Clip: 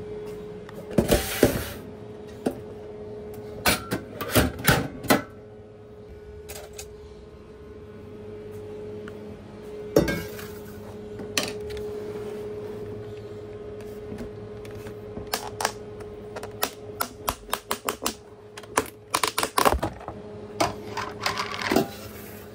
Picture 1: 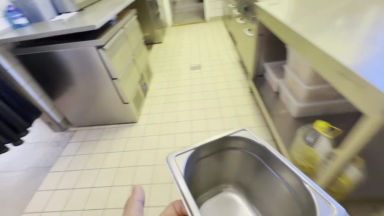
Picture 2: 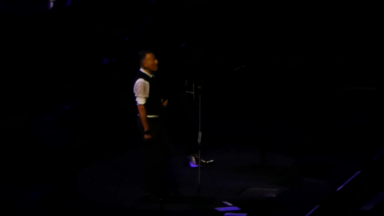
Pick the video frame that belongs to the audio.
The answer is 1